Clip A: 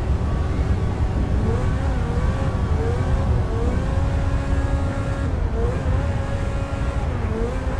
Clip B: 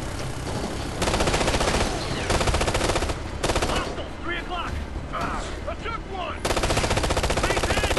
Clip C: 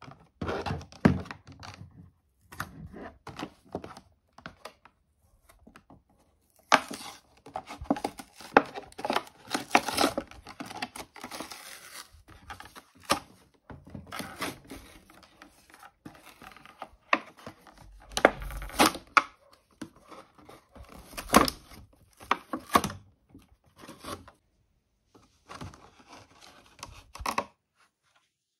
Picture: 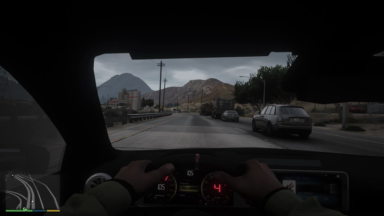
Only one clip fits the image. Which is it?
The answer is A